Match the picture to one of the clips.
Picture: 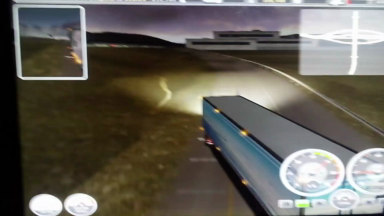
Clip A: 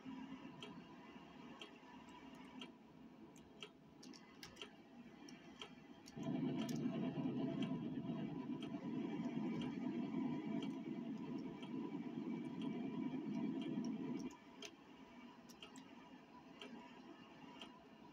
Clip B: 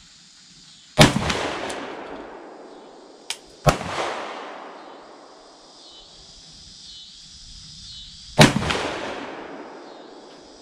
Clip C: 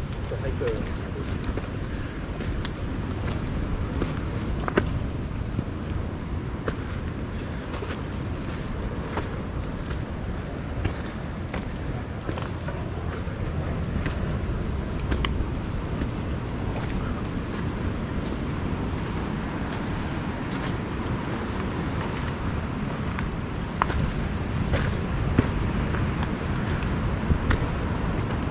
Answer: A